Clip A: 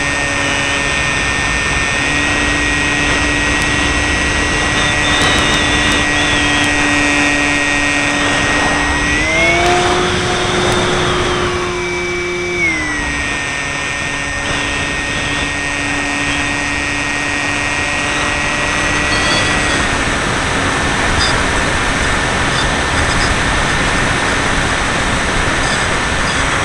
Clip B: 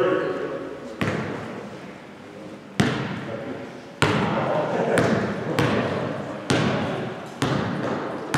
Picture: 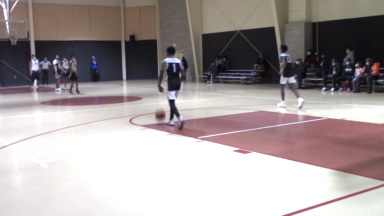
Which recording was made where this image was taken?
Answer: B